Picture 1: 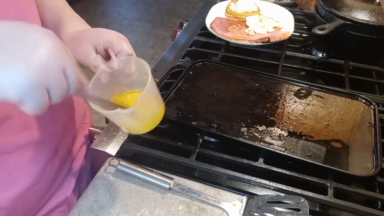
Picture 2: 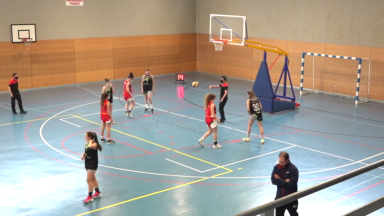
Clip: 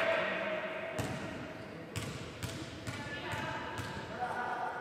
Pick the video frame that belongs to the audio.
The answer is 2